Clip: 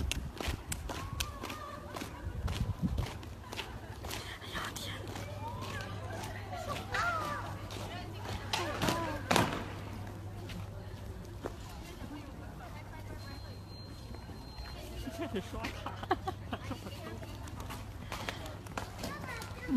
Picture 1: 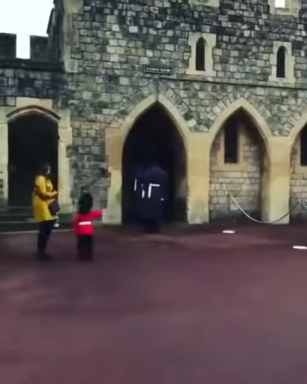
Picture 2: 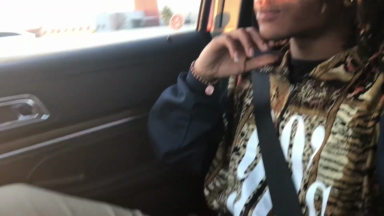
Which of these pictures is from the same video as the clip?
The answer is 1